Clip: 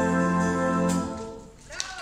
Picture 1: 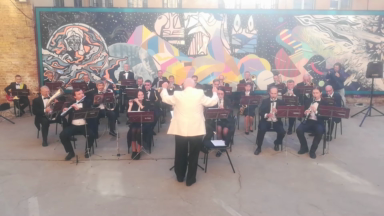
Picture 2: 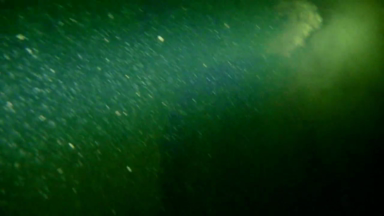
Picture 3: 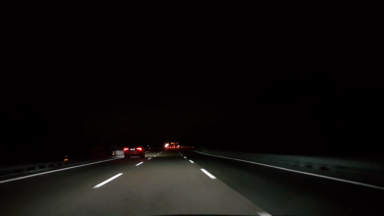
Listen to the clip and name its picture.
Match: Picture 1